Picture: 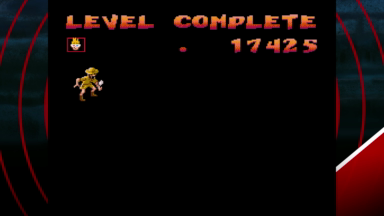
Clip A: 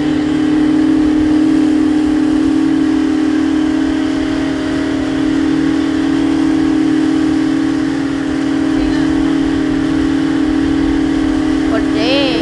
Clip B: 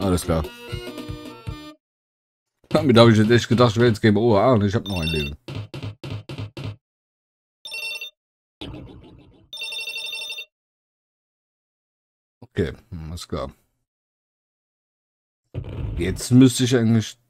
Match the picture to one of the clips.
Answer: B